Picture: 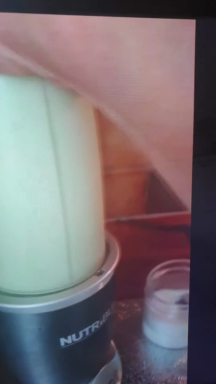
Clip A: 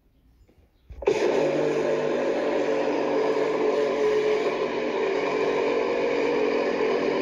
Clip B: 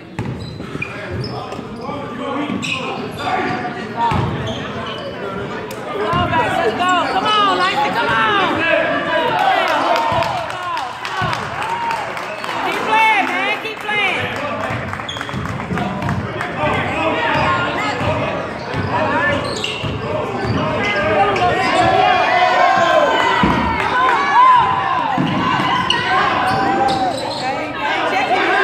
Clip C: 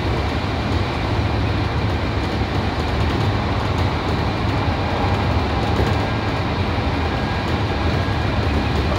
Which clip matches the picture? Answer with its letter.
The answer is A